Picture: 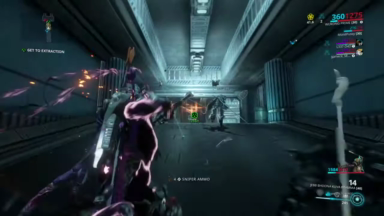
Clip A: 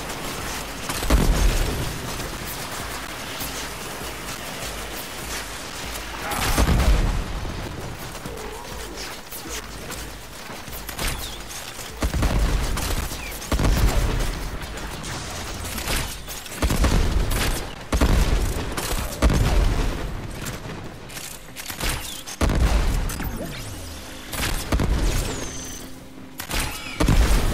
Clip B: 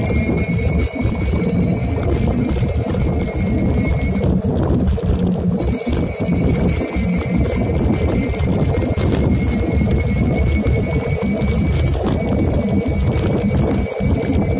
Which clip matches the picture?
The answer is A